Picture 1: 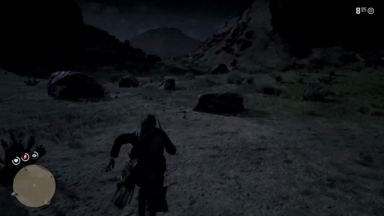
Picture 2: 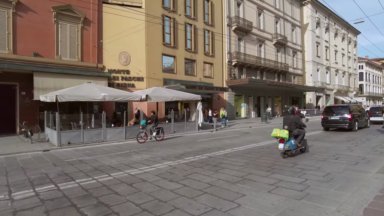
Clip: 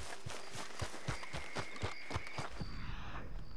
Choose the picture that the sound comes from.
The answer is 1